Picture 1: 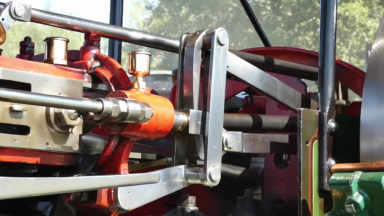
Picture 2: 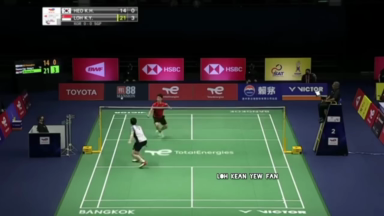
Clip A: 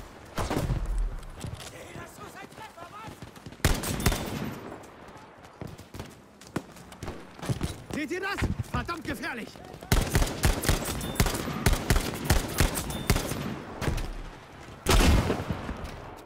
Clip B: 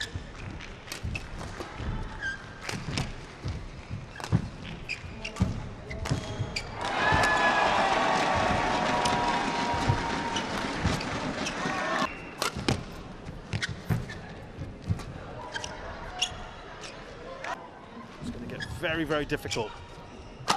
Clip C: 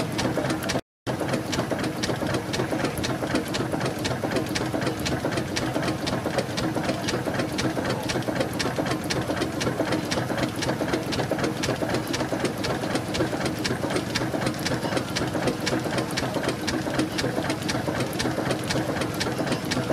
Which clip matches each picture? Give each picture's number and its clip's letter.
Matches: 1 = C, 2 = B